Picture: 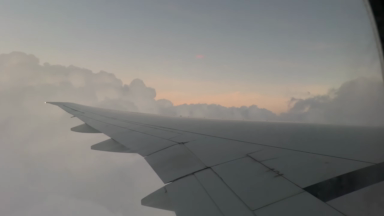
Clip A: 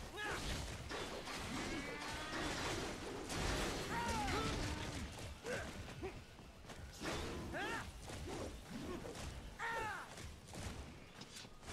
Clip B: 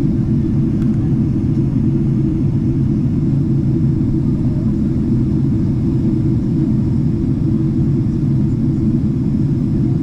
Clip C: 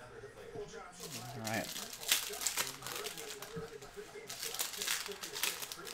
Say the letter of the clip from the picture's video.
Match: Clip B